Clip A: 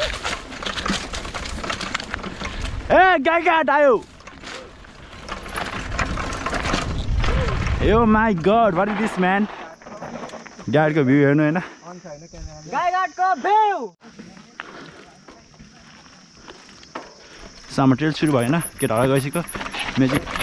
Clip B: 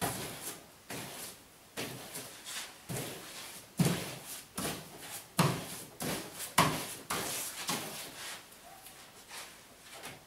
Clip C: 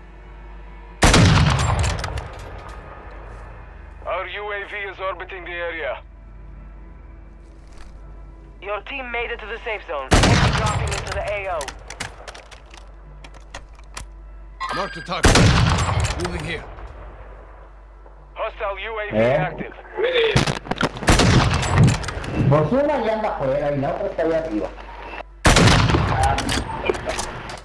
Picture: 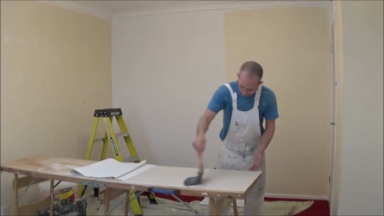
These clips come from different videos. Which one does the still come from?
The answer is B